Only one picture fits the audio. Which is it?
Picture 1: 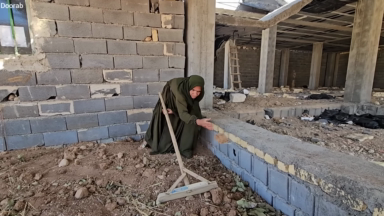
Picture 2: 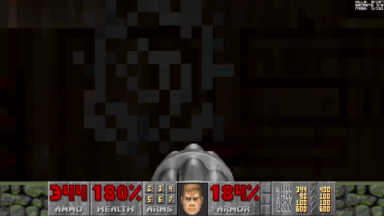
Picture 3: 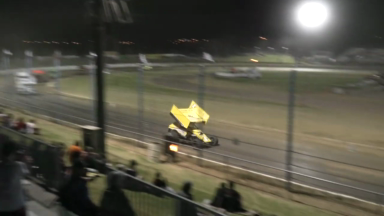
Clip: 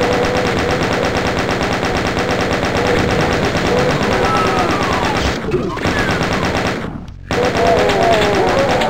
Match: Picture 2